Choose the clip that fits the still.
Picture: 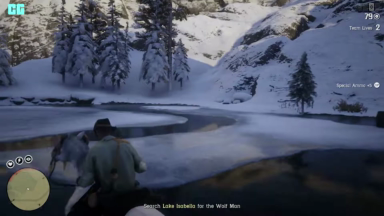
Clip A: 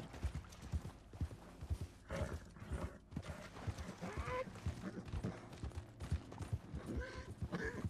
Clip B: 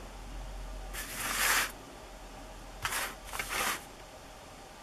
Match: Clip A